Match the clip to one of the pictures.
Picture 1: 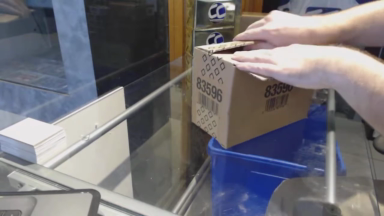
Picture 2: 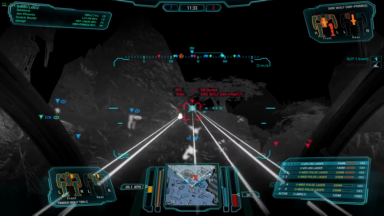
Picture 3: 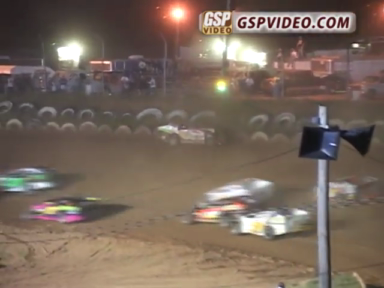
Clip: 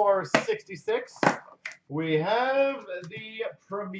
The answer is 1